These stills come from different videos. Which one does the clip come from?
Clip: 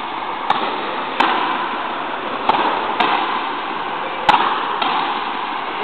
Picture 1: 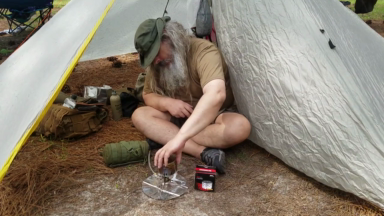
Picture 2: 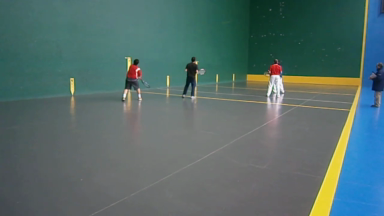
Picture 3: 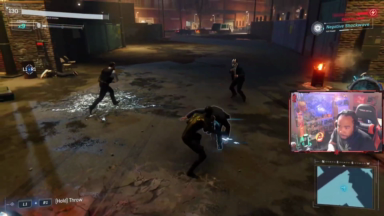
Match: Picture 2